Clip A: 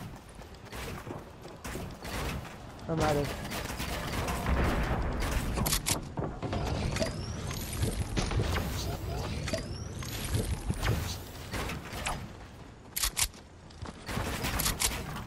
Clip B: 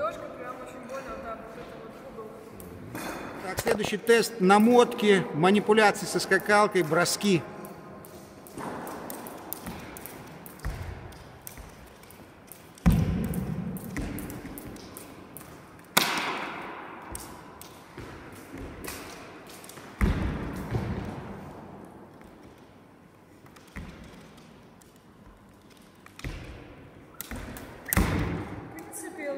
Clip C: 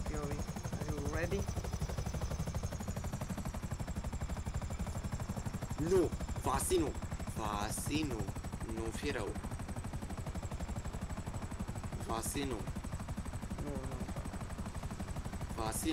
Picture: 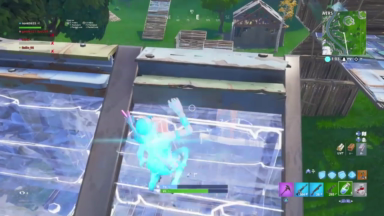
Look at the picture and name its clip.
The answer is A